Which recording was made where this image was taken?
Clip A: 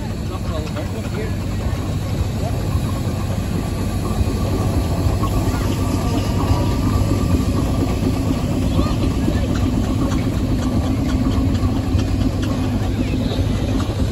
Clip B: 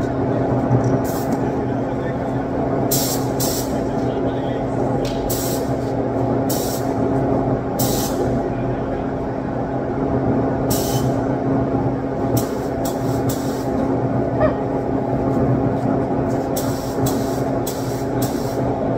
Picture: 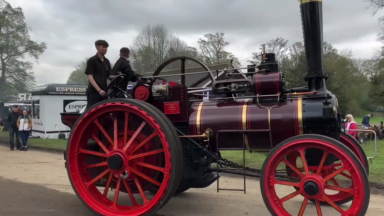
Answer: A